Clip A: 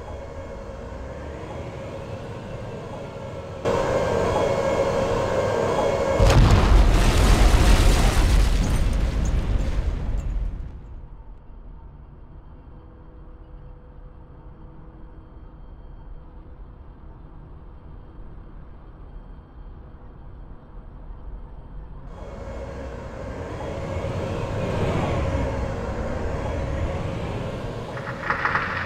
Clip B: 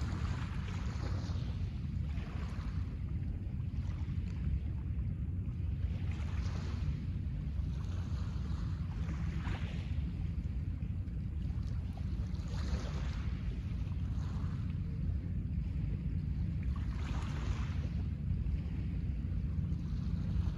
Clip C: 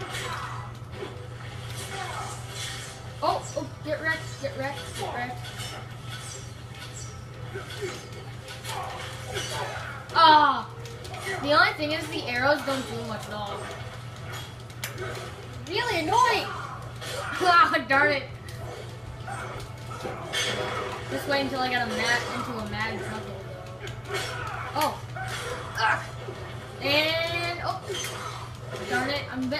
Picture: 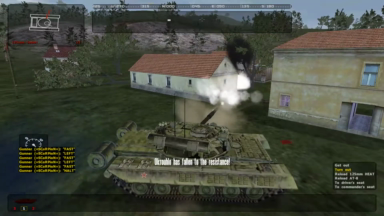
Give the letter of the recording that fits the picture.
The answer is A